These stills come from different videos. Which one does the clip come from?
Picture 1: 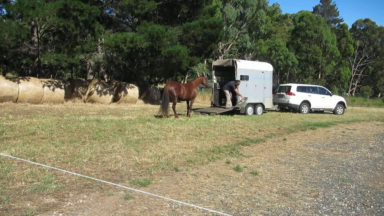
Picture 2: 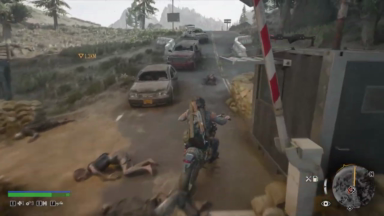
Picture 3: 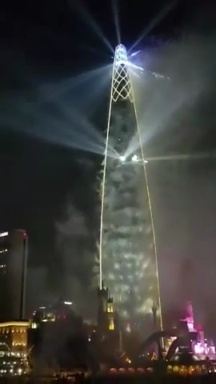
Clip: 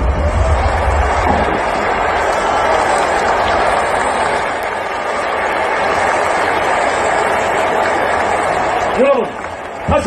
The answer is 3